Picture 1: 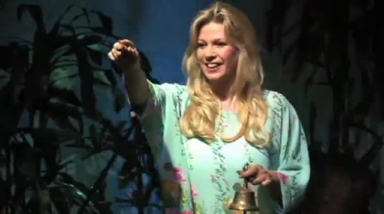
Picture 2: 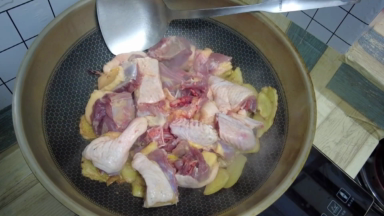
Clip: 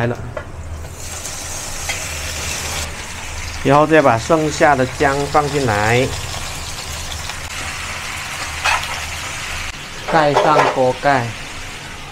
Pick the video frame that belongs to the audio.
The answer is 2